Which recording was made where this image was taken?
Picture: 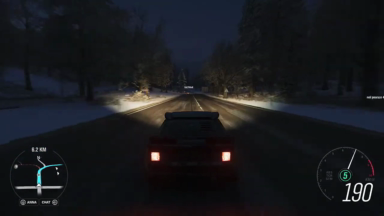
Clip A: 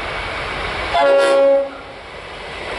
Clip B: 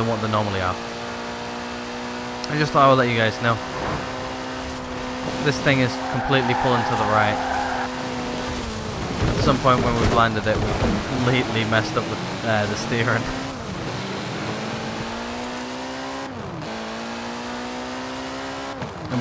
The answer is B